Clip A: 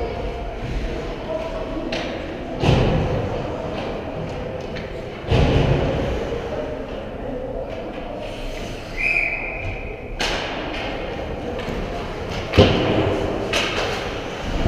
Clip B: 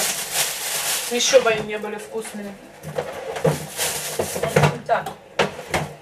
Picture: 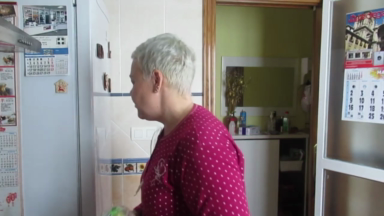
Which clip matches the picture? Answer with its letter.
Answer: B